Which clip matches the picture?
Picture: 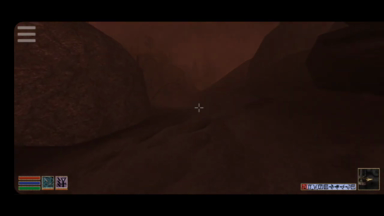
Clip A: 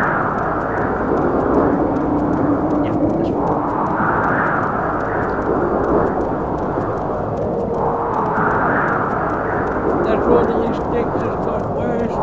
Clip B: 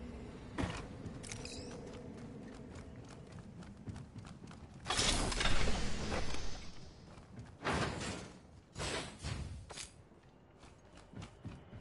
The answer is A